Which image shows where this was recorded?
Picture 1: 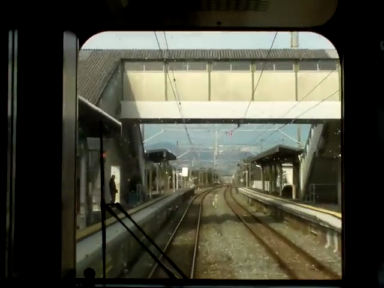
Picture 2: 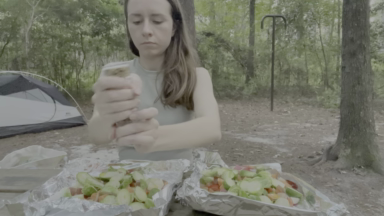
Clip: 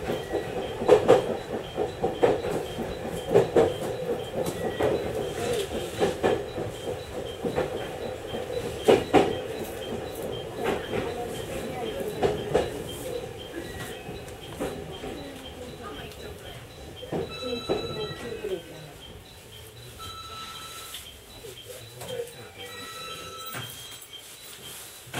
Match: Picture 1